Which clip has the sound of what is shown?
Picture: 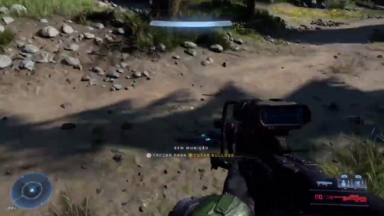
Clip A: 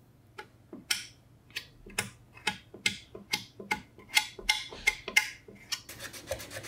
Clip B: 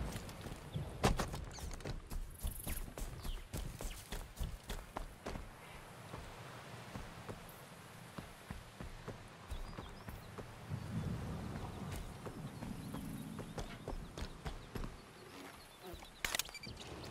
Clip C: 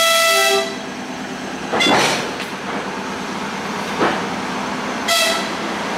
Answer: B